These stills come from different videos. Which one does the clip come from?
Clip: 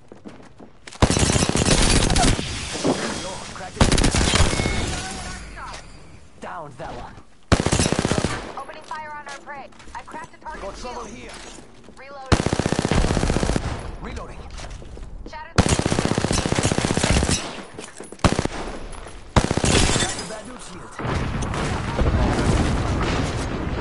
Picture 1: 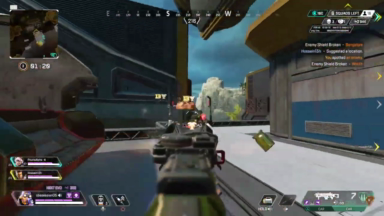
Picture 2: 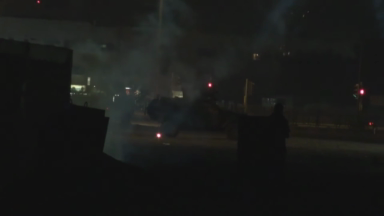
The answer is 1